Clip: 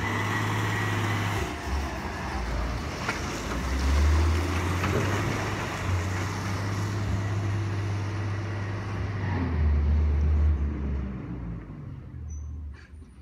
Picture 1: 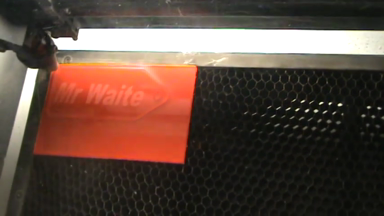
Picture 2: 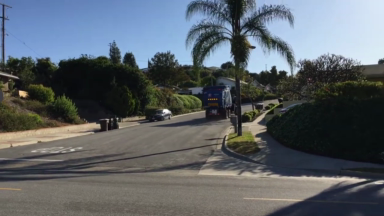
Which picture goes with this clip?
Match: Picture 2